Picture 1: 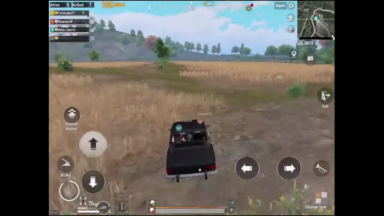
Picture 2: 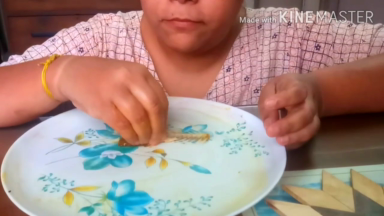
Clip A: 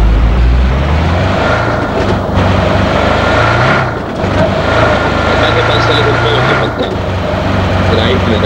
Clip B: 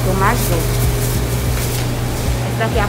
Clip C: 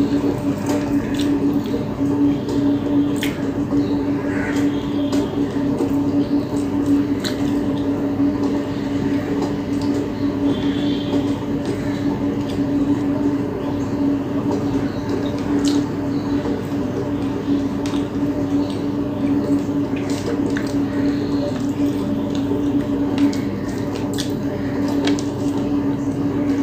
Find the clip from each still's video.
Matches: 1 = A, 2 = C